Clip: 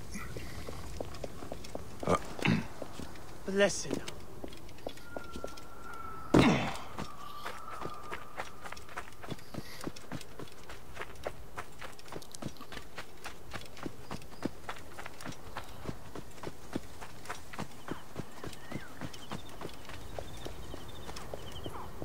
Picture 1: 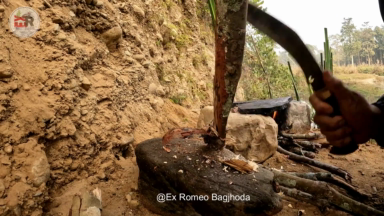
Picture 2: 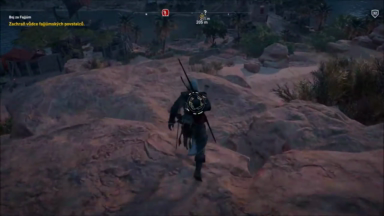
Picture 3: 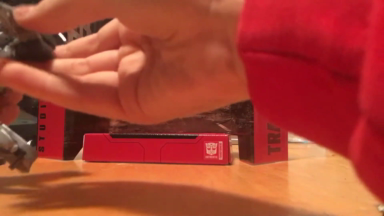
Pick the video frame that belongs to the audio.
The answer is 2